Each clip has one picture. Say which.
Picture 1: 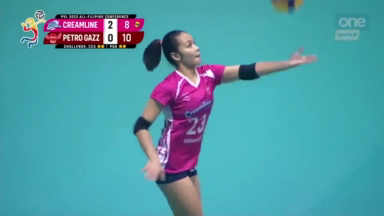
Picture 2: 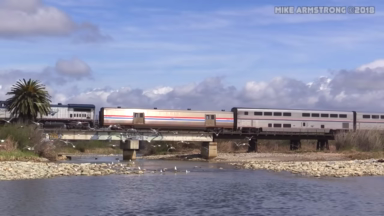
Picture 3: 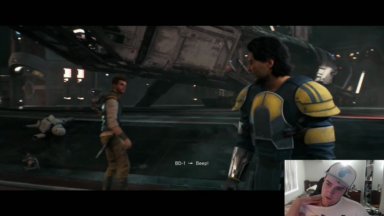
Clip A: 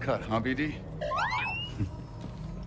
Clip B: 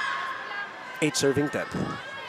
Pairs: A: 3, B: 1